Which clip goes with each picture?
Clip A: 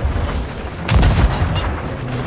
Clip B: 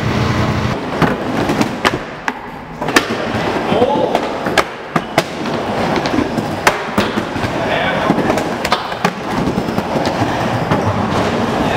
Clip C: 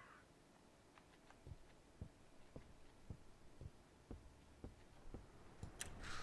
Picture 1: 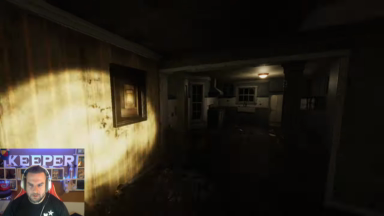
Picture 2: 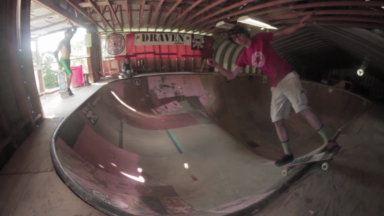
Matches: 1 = C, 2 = B